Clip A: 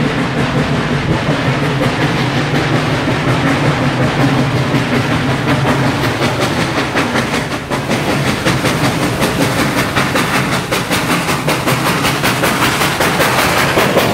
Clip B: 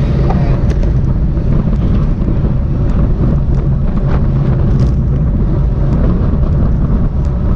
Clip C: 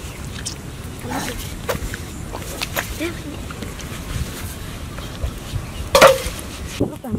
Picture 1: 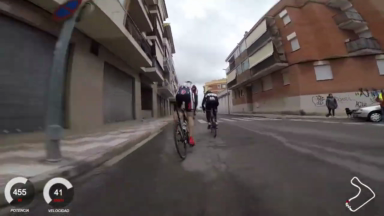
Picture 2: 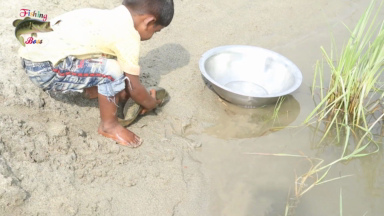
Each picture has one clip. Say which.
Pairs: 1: B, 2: C